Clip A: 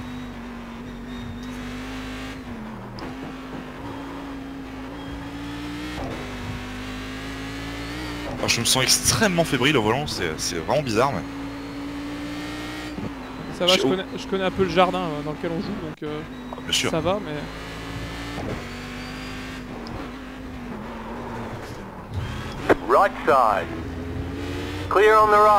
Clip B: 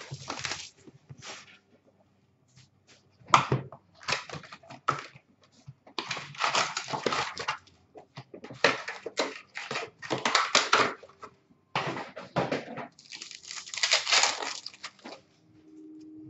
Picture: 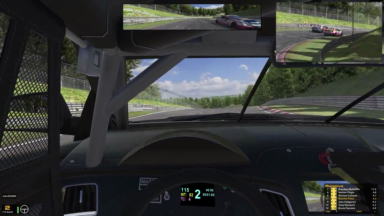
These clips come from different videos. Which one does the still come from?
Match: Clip A